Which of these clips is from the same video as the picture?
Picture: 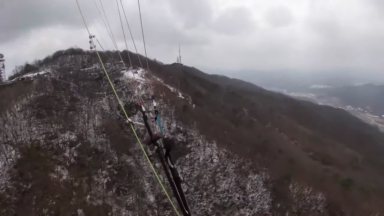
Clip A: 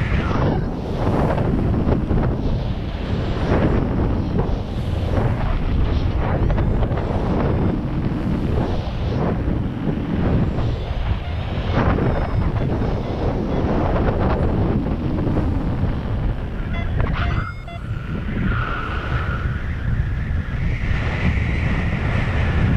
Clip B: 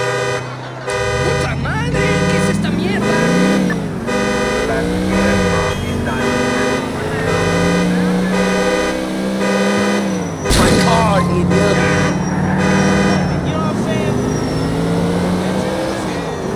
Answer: A